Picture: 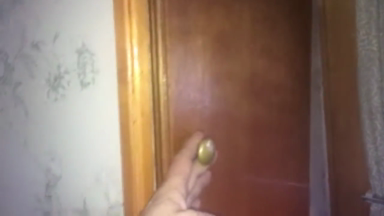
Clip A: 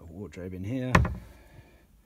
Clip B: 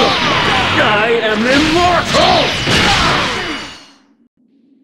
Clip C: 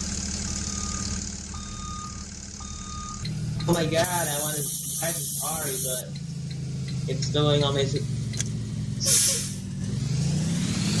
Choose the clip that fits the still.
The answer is A